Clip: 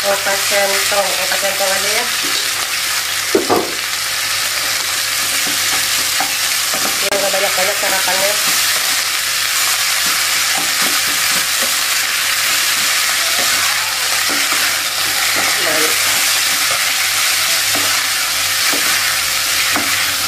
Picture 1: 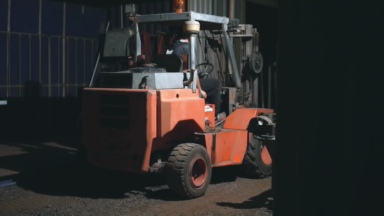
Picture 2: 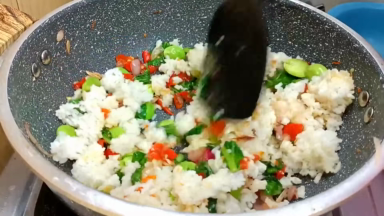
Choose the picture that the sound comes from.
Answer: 2